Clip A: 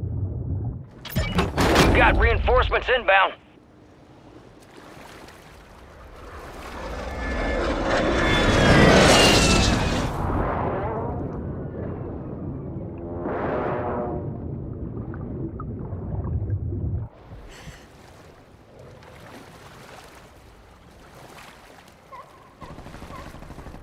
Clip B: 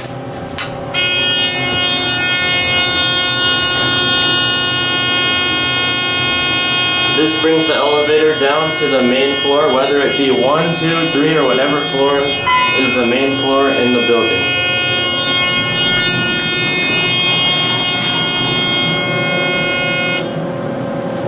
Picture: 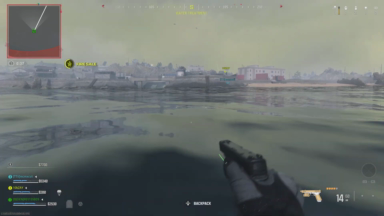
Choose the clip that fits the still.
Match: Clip A